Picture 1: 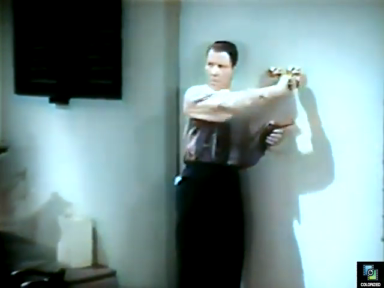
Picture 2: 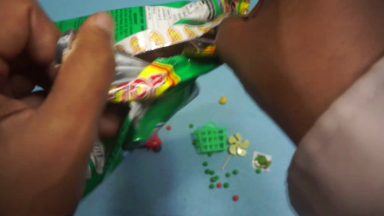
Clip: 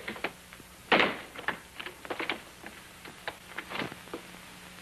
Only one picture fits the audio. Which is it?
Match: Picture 1